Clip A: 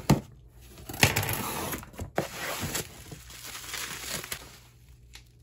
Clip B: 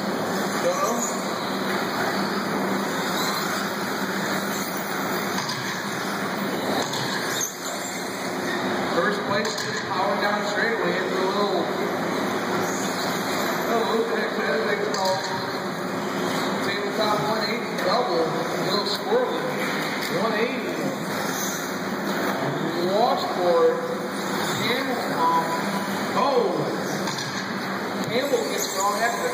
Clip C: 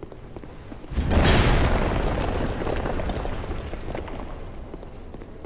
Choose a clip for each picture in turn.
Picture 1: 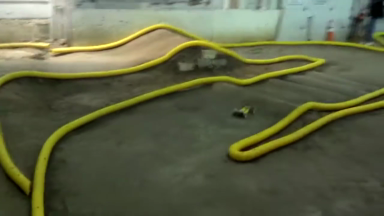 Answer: B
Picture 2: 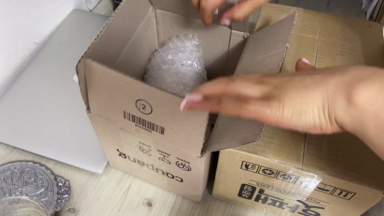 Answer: A